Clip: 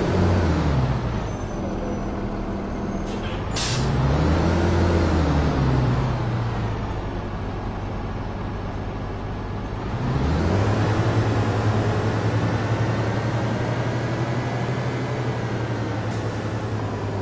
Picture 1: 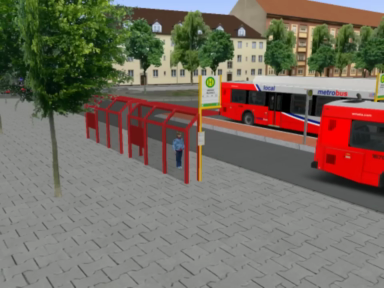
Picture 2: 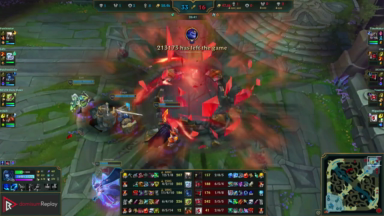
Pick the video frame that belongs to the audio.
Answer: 1